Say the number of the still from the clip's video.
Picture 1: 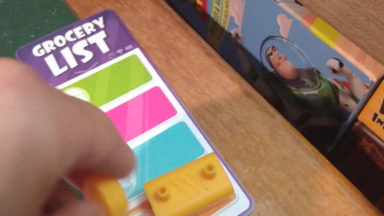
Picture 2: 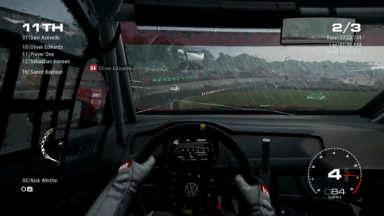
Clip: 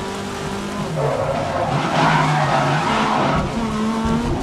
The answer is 2